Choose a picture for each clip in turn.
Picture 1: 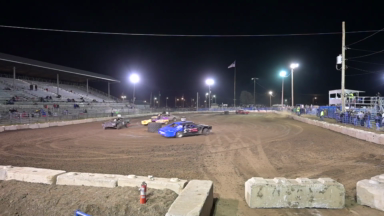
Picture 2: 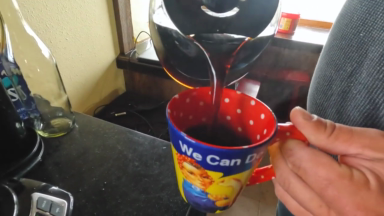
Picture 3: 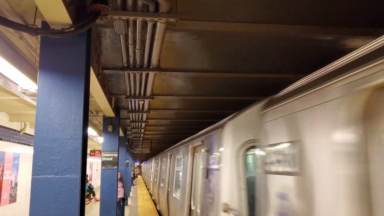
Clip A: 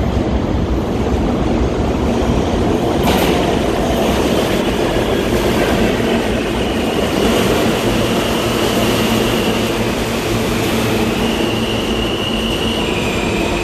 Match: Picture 3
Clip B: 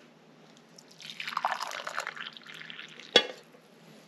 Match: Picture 2